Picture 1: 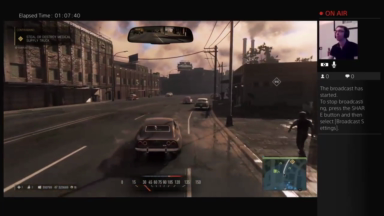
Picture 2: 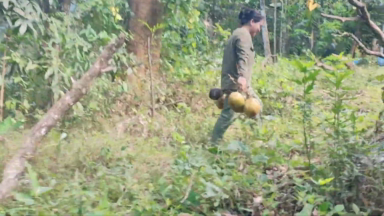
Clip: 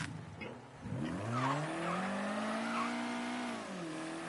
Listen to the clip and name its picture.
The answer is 1